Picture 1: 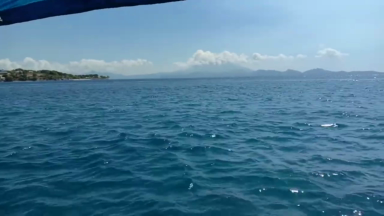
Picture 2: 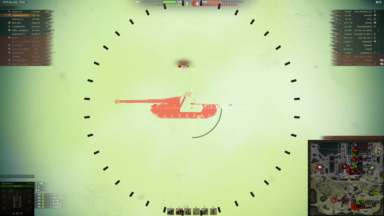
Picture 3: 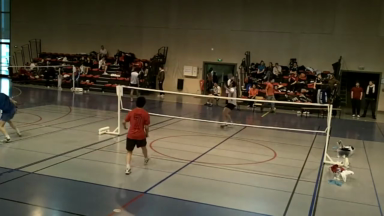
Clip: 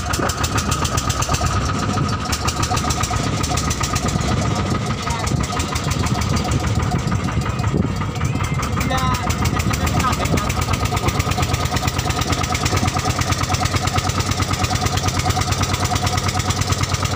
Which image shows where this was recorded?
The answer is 1